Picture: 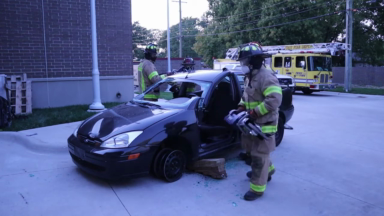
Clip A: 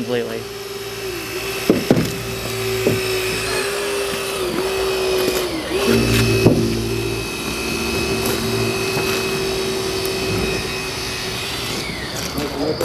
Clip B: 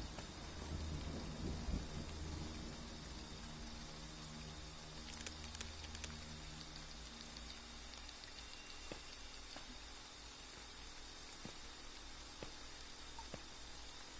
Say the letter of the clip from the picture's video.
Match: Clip A